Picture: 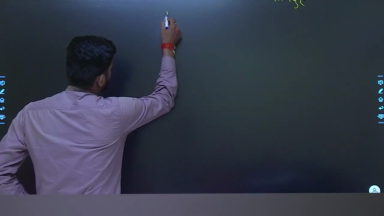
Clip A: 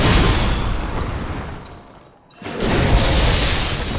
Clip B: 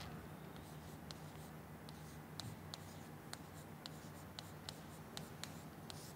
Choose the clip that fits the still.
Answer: B